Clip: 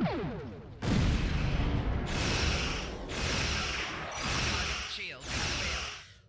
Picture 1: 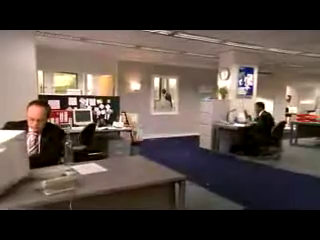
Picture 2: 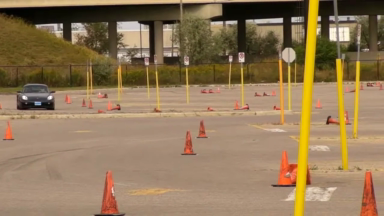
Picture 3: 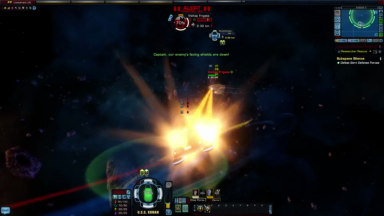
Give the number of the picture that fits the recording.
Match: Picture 3